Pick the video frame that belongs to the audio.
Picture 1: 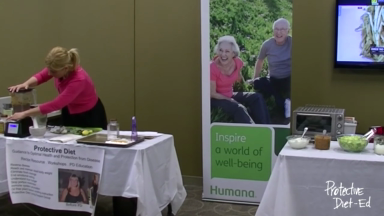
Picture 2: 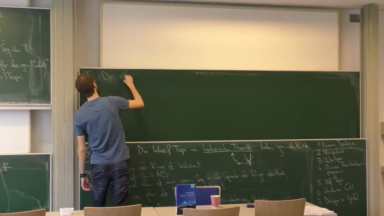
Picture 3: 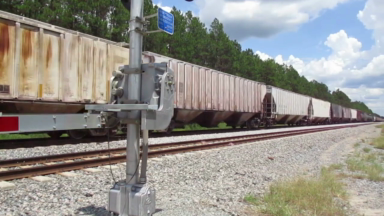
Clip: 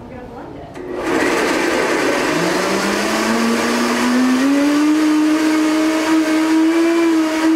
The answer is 1